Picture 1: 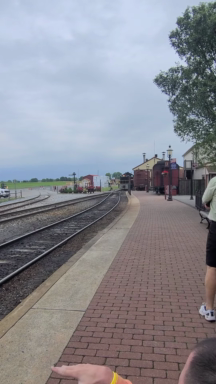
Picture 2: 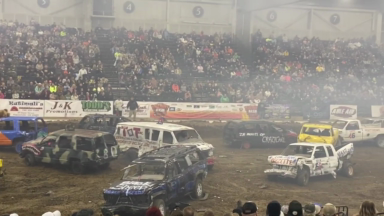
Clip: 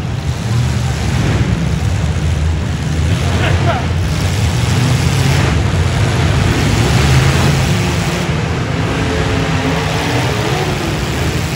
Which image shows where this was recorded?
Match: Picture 2